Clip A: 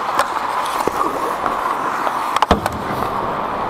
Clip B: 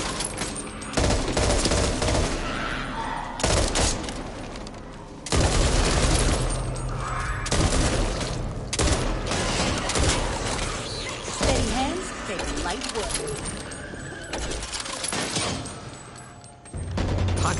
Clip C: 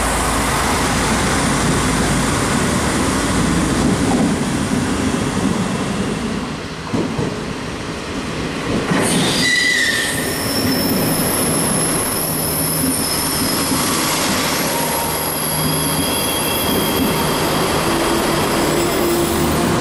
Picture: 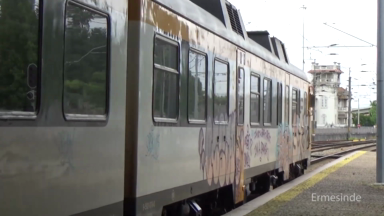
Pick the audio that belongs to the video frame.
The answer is C